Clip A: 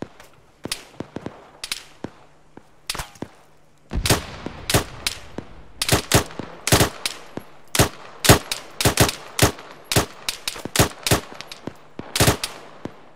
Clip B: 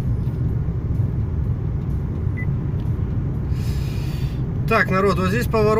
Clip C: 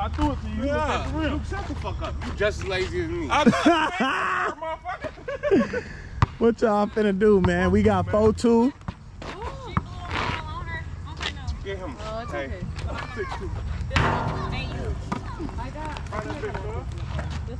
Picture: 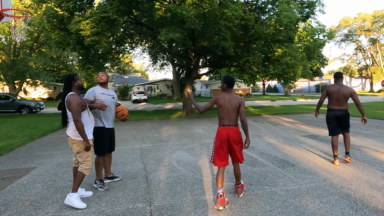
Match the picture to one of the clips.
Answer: C